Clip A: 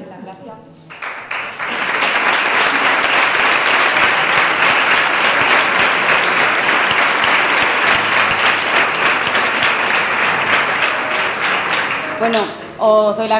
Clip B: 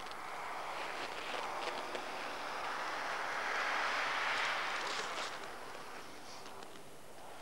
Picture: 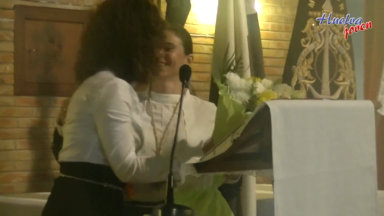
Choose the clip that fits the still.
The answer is A